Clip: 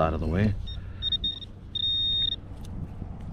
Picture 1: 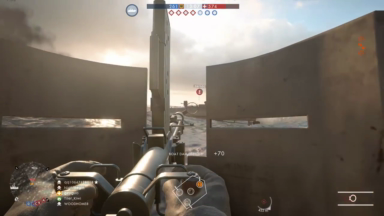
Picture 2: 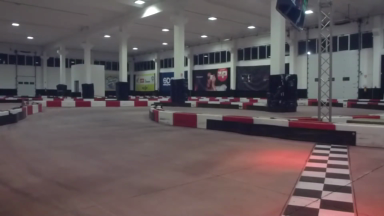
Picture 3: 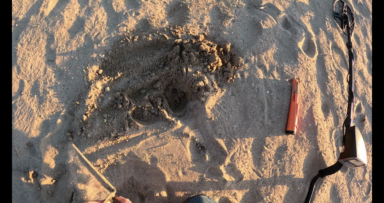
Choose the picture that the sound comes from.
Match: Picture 3